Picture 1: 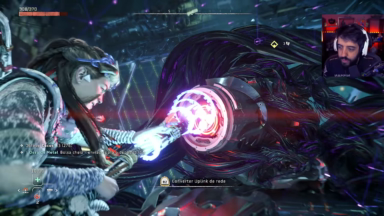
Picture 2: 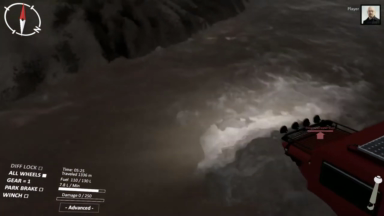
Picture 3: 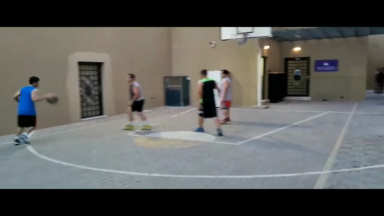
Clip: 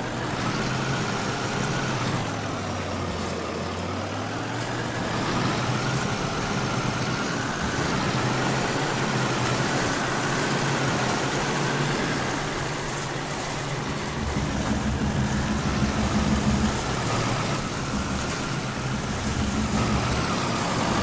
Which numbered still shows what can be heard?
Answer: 2